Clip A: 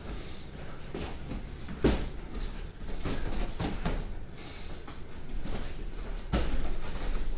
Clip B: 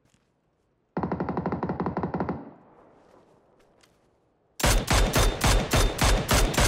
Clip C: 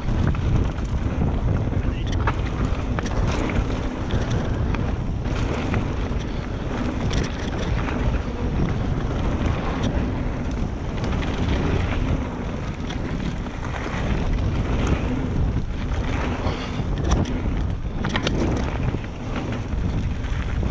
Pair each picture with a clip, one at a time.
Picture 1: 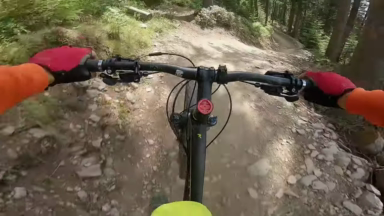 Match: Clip C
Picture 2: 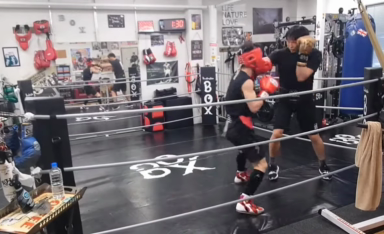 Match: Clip A